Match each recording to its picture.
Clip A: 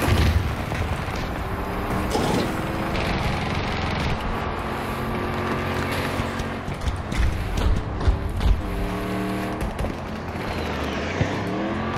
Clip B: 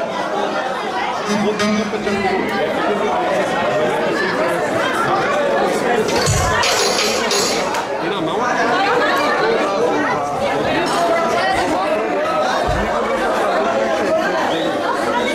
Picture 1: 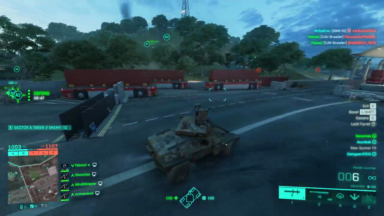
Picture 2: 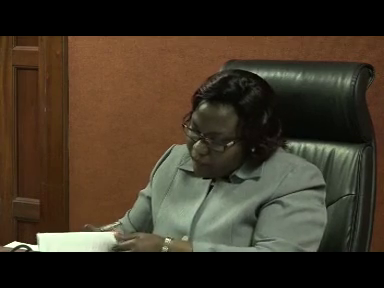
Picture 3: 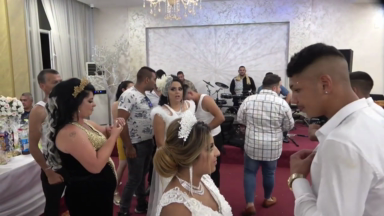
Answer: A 1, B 3